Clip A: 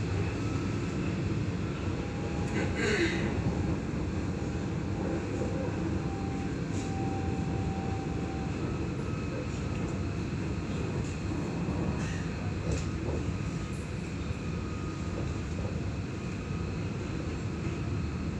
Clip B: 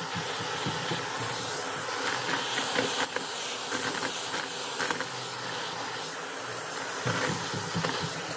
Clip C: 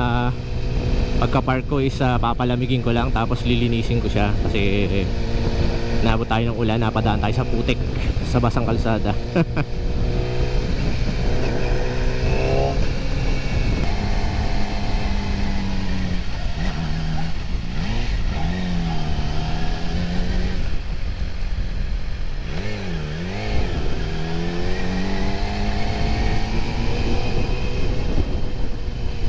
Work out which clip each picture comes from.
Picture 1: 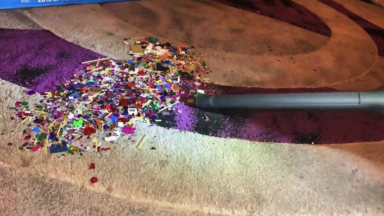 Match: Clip B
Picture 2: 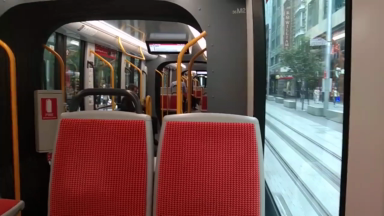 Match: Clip A